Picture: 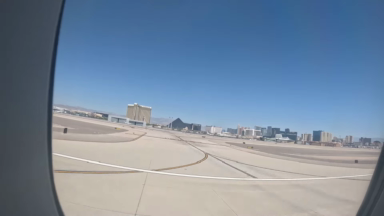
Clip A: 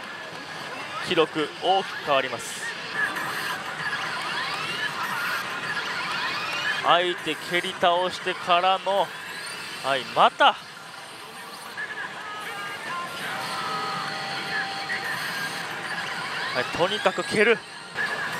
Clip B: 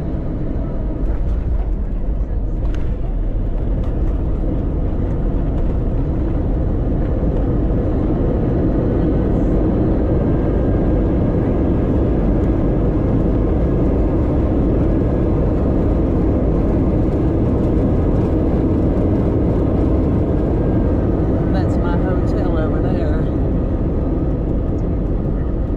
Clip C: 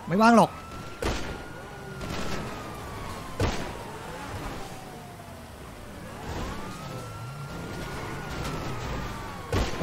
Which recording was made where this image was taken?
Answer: B